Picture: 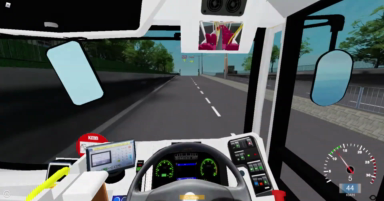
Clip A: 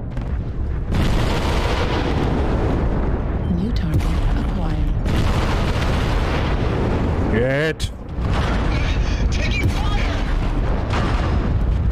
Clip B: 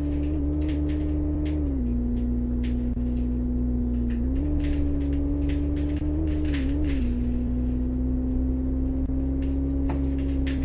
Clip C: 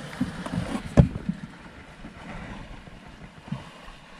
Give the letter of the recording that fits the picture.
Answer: B